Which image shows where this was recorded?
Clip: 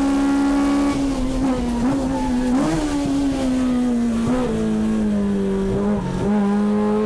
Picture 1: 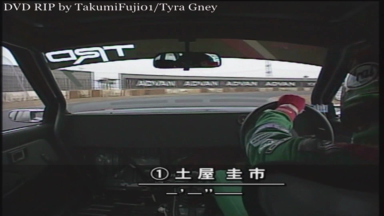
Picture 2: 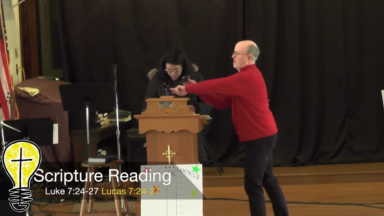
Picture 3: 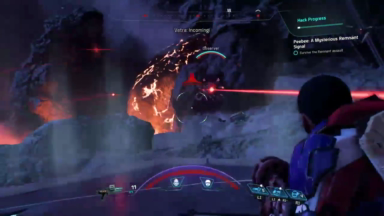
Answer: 1